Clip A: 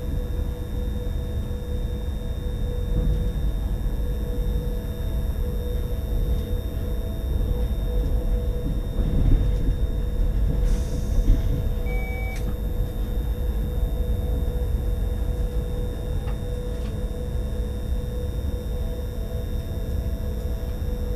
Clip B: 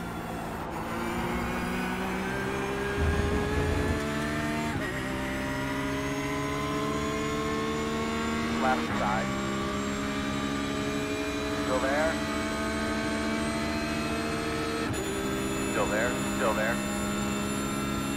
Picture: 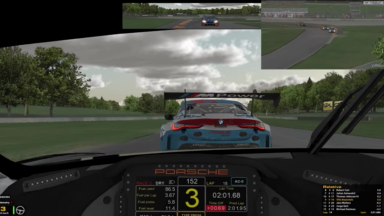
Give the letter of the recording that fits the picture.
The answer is B